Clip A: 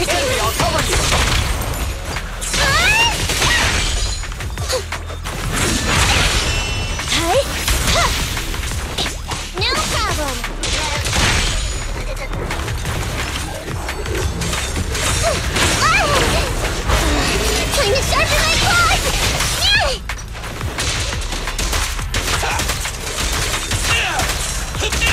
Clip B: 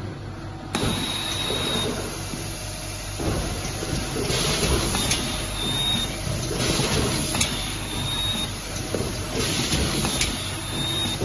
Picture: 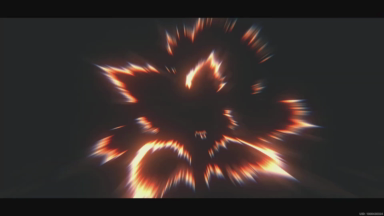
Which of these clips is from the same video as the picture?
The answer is A